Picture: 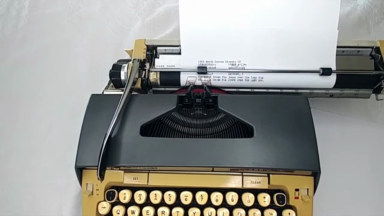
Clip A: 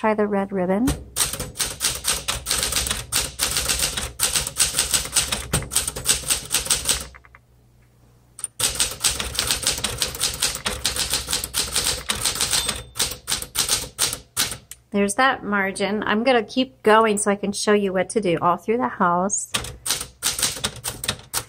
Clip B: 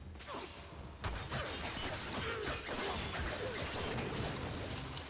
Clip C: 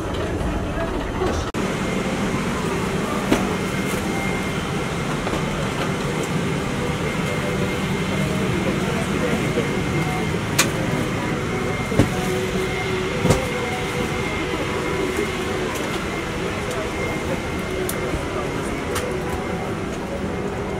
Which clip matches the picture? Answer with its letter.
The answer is A